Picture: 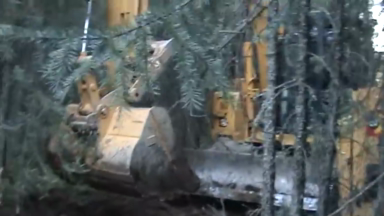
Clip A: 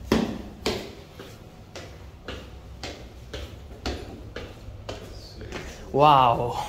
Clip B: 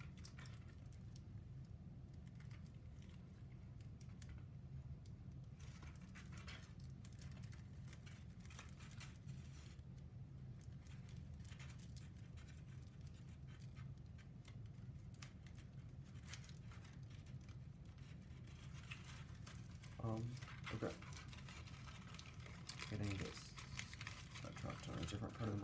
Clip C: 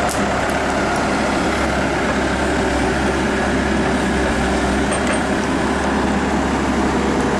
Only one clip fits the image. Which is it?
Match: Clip C